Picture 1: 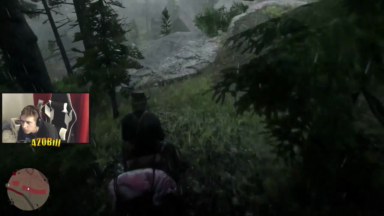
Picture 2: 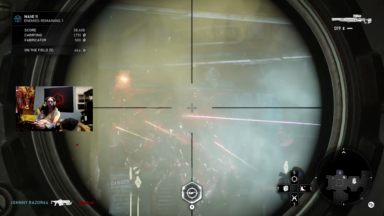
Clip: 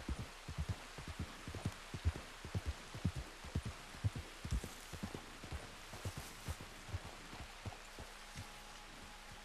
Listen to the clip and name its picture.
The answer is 1